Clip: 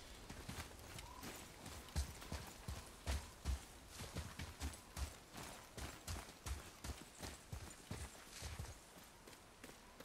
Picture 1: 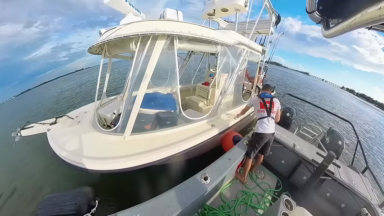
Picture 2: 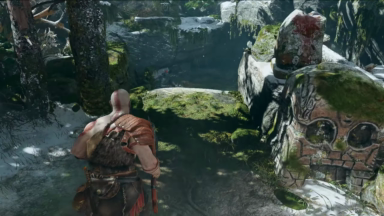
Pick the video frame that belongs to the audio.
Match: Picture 2